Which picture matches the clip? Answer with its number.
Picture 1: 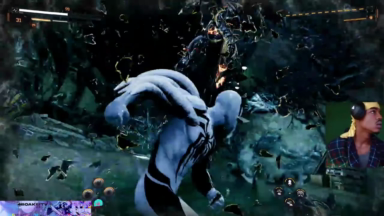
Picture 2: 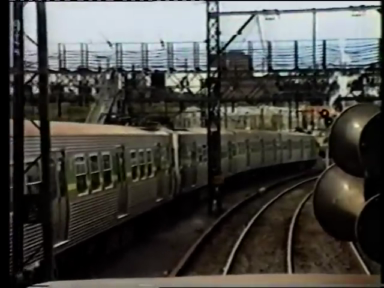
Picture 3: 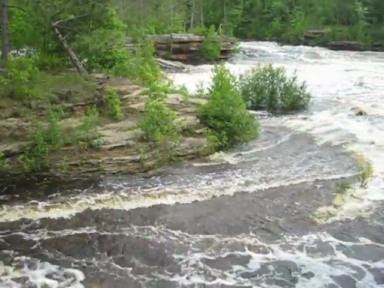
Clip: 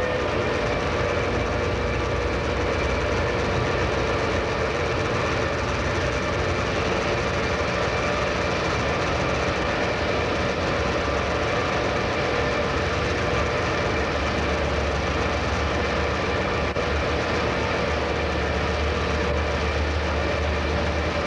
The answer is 2